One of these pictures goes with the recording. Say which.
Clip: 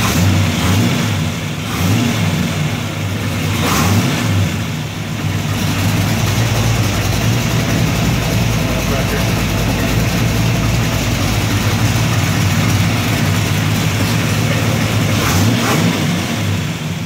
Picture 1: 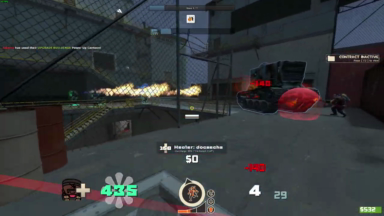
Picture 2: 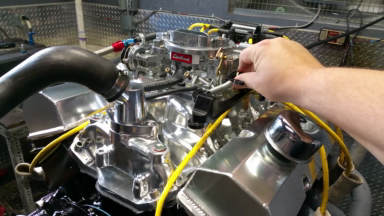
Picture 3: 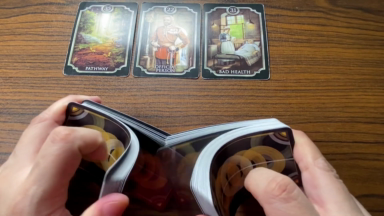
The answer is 2